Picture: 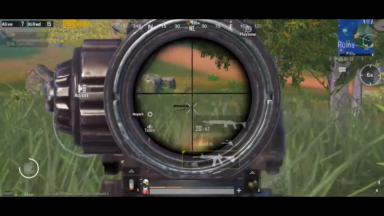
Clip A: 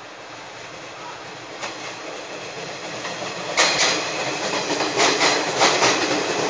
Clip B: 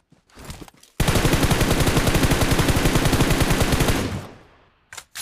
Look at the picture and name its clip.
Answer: B